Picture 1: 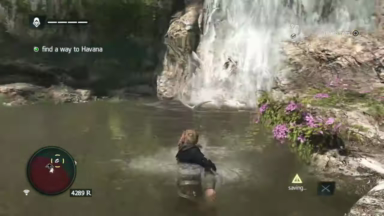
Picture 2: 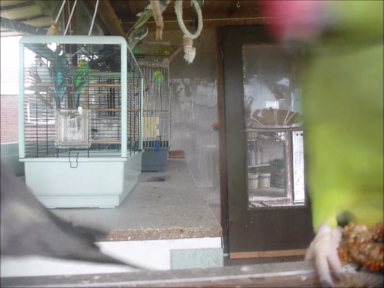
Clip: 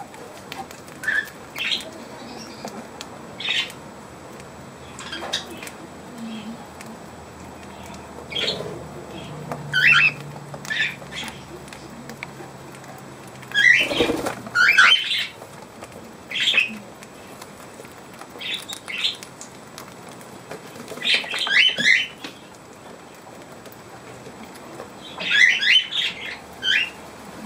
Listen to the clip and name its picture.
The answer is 2